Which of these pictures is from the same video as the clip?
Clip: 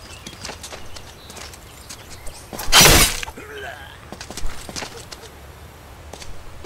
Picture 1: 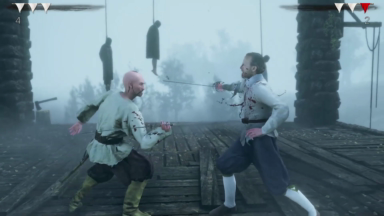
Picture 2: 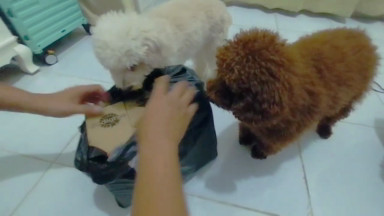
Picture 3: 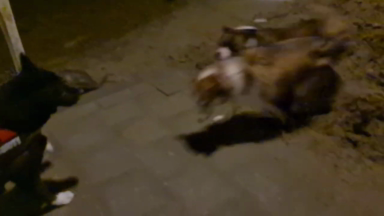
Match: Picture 1